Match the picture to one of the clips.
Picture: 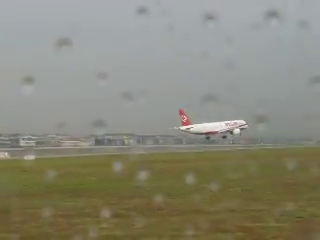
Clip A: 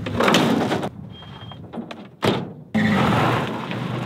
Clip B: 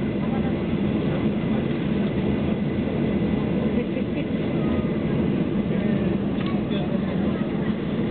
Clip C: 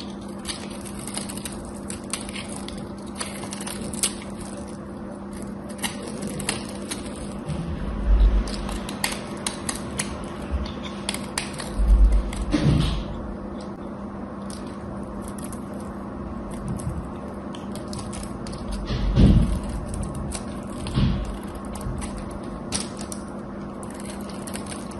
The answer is B